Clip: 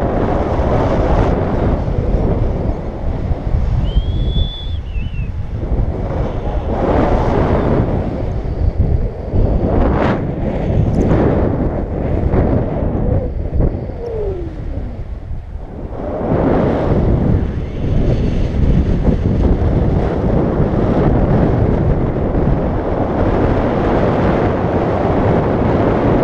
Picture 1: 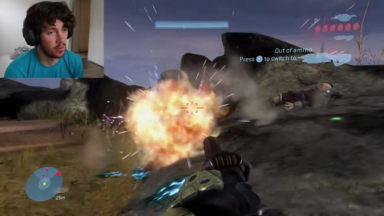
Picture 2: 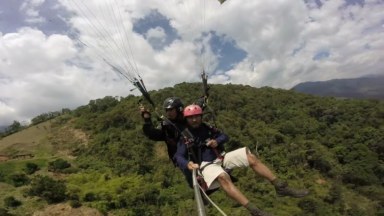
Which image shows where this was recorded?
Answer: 2